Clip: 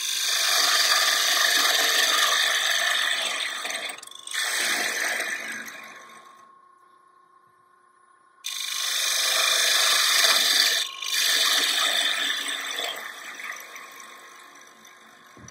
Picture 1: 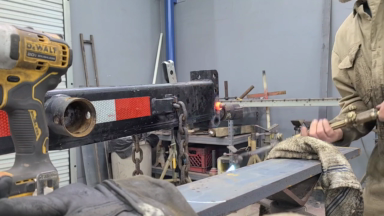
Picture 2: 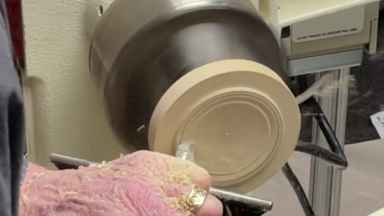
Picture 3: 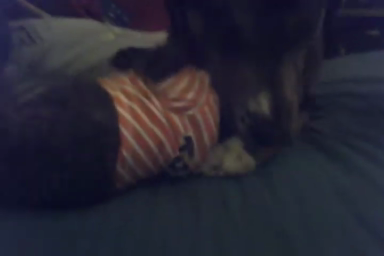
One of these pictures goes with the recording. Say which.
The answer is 2